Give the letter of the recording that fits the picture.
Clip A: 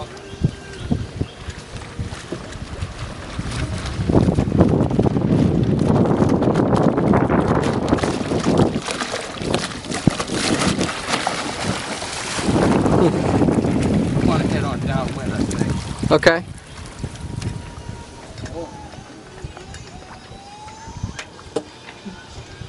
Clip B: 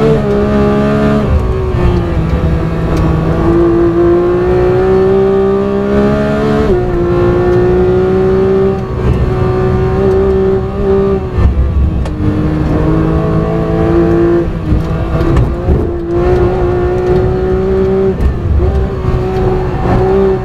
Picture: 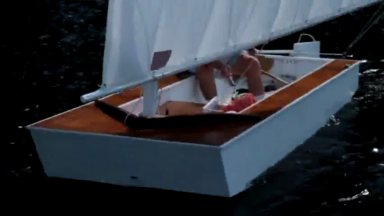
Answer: A